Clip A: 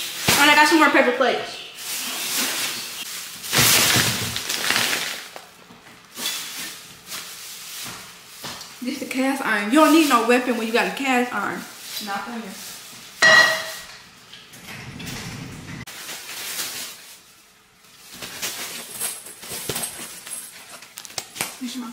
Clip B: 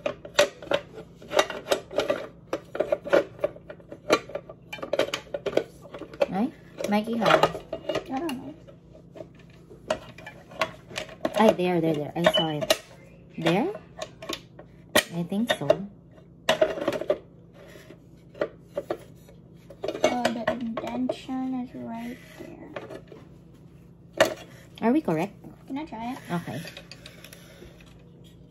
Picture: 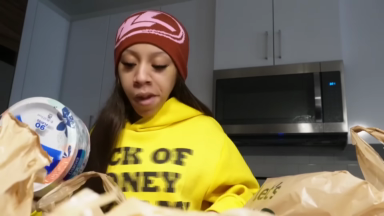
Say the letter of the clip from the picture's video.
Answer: A